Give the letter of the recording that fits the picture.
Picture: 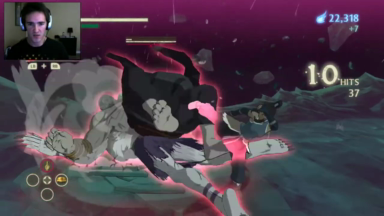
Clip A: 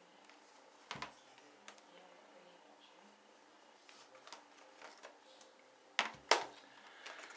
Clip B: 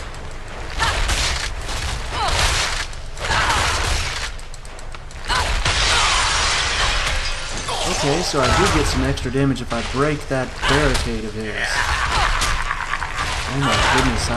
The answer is B